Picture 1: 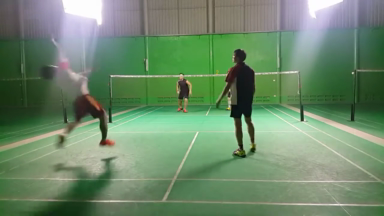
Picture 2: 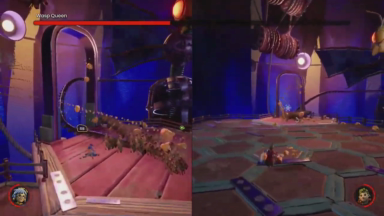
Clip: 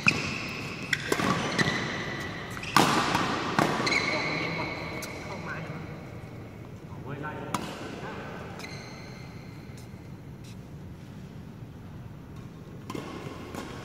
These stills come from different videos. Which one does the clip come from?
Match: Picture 1